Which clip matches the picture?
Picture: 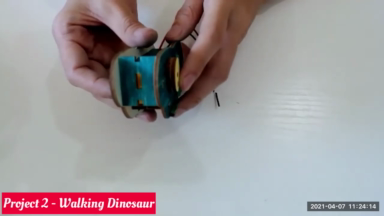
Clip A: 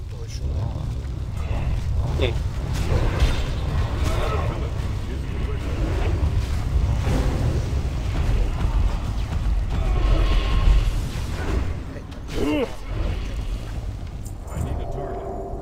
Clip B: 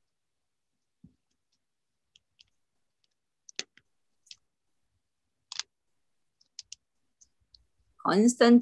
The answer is B